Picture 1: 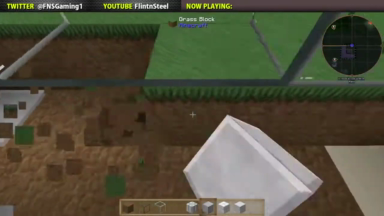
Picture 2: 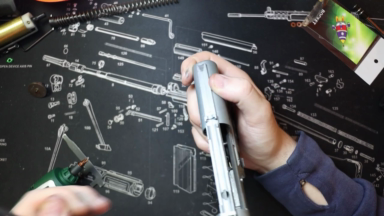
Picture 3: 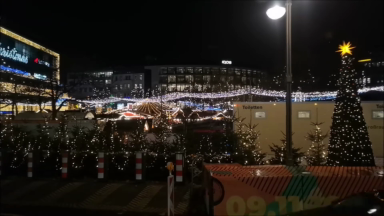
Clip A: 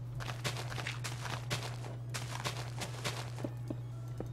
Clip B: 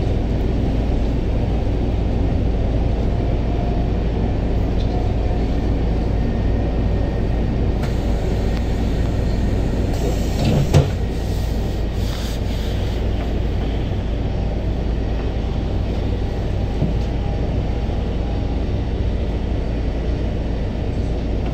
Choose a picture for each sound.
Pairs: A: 1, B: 3